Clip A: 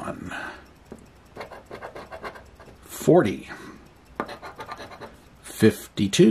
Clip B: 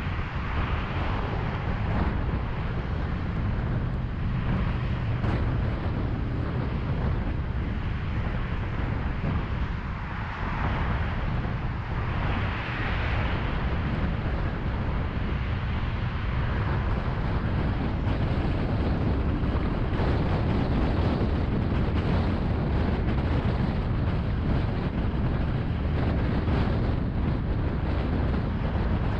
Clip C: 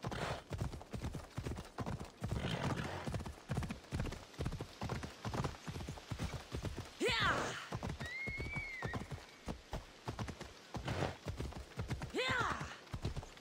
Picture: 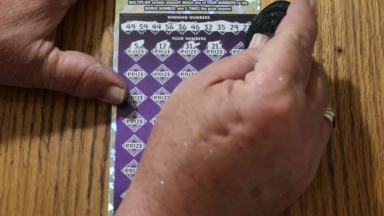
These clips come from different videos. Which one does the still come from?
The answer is A